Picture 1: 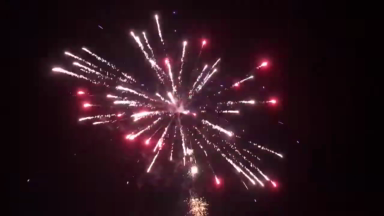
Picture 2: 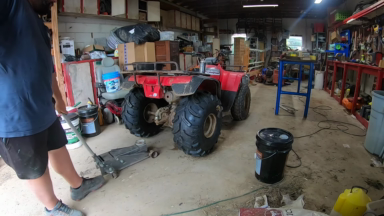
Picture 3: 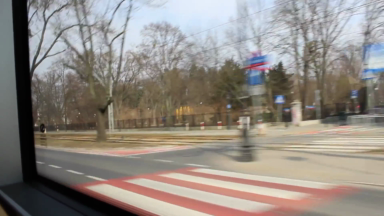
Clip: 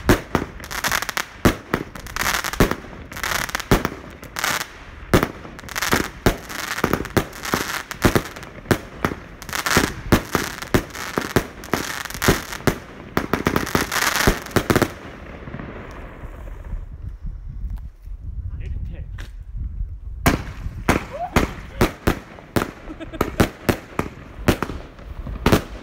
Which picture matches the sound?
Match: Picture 1